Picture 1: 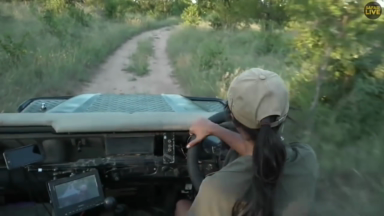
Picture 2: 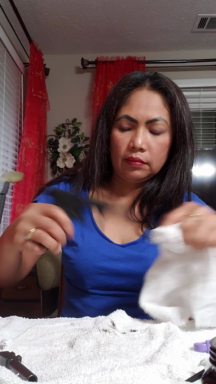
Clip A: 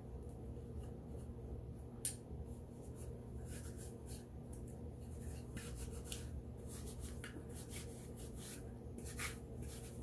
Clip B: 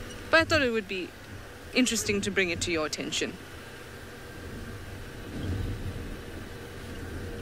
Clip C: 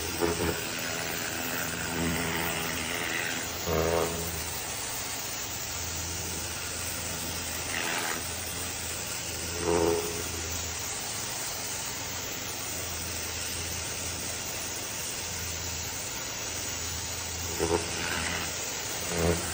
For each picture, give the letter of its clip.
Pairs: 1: B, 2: A